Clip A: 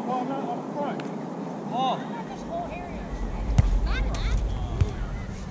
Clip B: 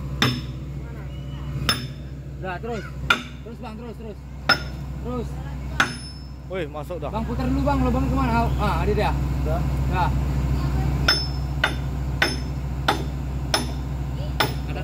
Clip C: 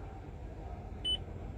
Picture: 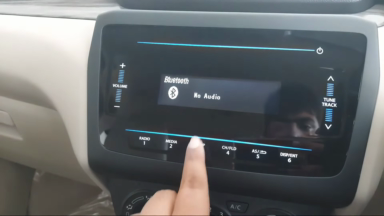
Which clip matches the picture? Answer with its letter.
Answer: C